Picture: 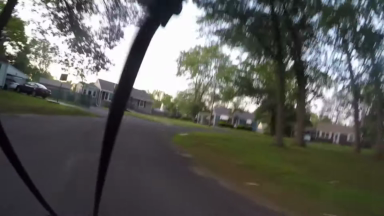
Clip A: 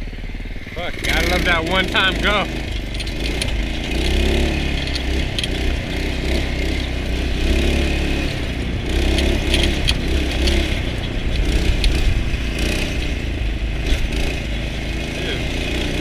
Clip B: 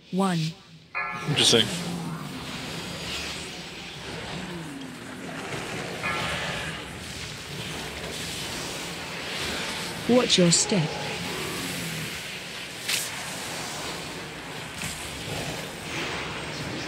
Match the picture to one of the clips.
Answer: A